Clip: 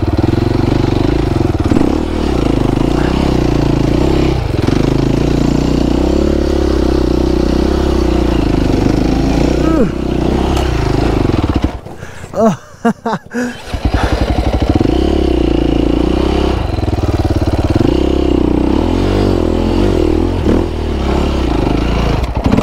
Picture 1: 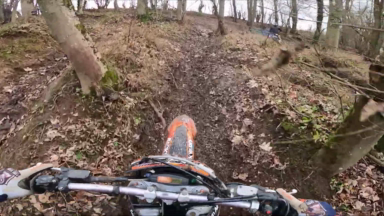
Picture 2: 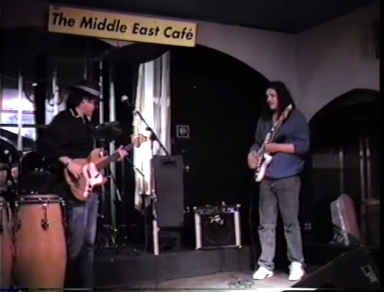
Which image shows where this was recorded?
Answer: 1